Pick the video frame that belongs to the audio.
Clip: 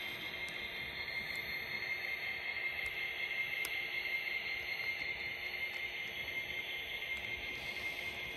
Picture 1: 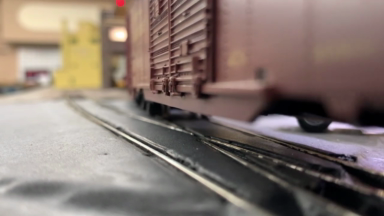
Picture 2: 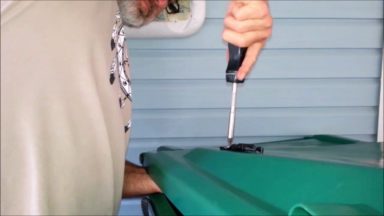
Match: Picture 1